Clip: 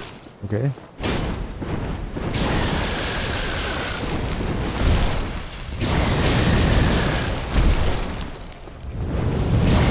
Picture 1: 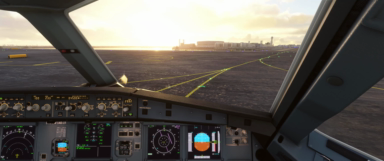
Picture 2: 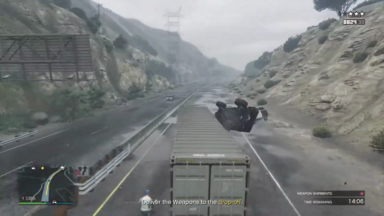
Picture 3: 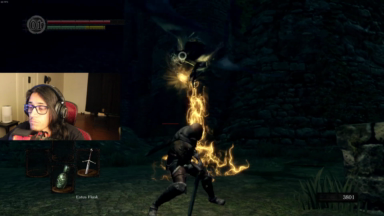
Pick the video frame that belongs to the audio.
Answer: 3